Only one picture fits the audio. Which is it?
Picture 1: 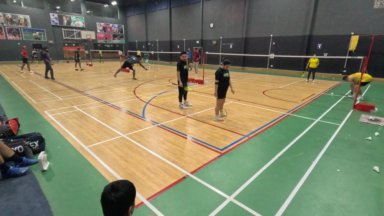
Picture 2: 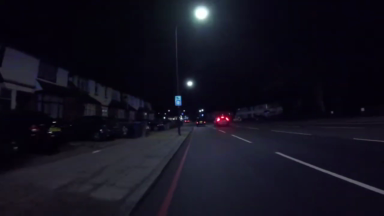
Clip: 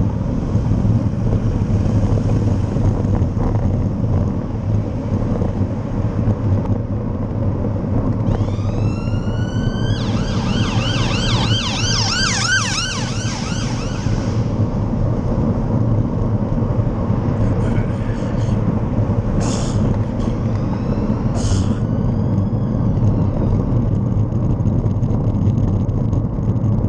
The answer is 2